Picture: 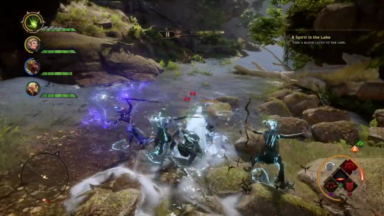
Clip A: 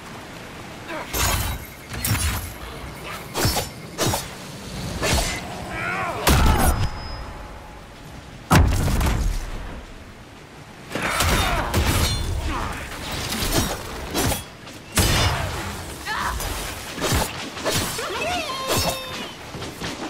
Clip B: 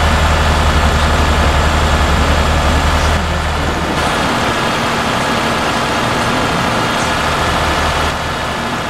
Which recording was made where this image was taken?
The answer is A